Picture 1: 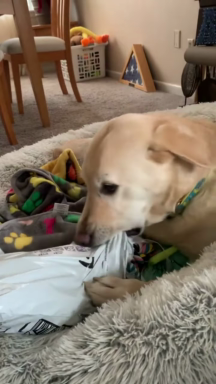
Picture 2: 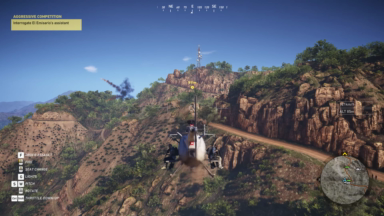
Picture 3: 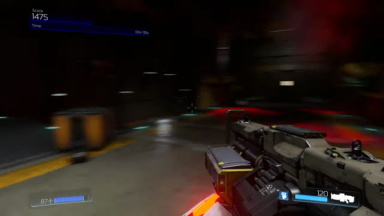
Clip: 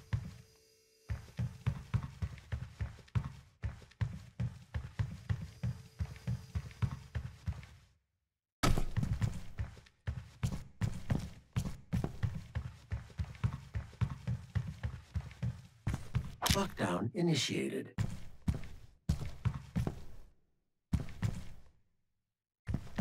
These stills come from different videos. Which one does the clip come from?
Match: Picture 3